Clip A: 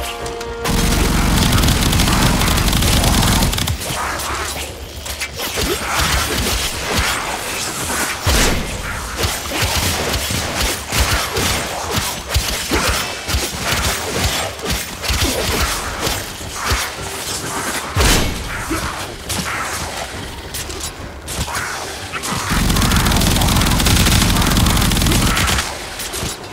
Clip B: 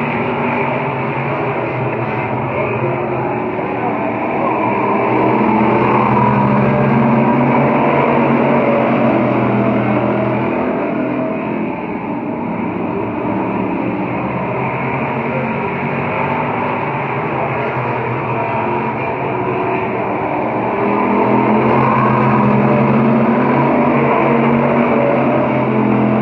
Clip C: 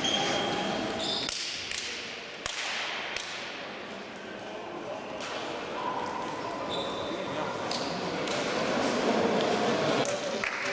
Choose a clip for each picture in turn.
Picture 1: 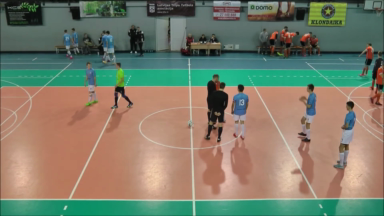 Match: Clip C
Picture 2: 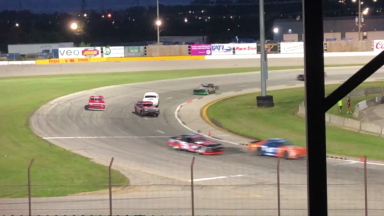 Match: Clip B